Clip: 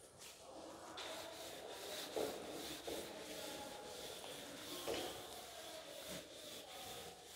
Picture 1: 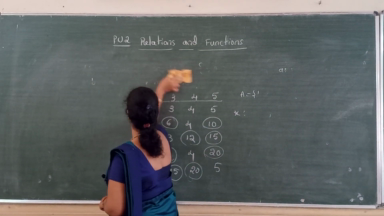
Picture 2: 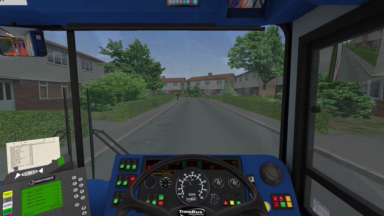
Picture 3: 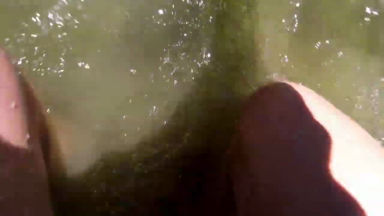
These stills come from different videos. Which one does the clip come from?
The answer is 1